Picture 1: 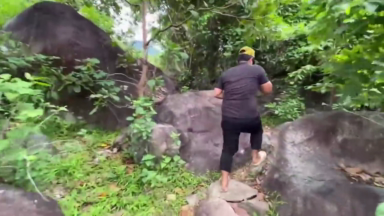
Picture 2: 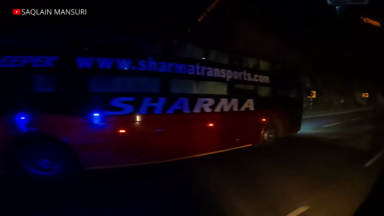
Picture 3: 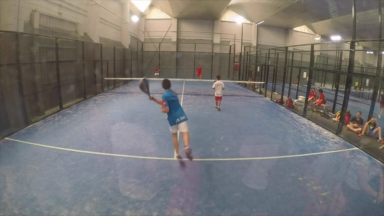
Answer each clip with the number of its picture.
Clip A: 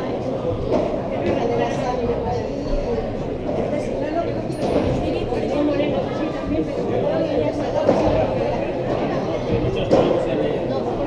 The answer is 3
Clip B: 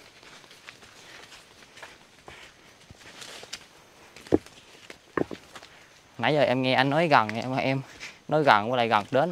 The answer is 1